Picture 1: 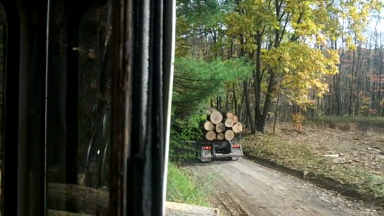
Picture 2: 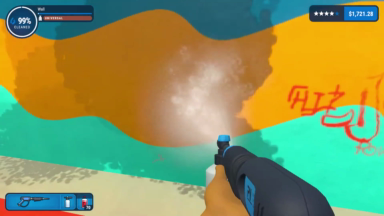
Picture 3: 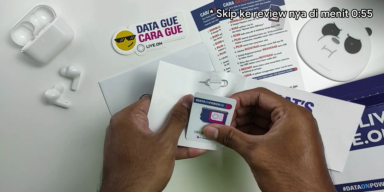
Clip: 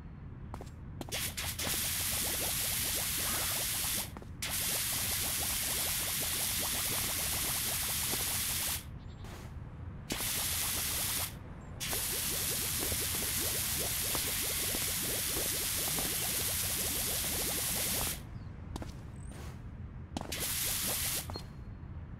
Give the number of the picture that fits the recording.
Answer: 2